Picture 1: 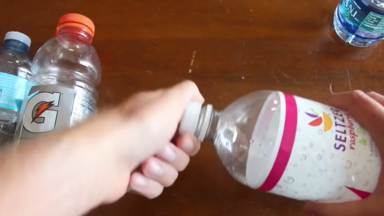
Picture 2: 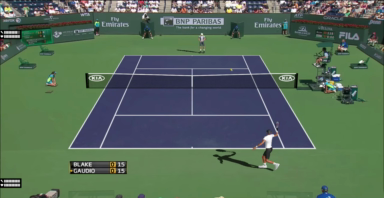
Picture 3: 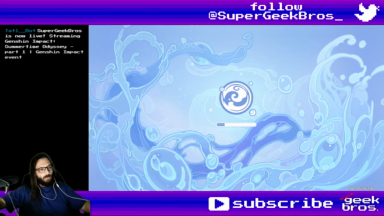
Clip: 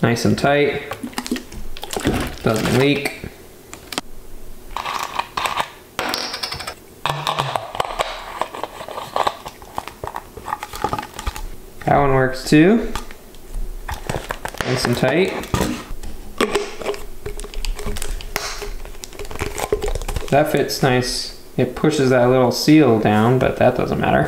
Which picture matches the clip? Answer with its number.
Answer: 1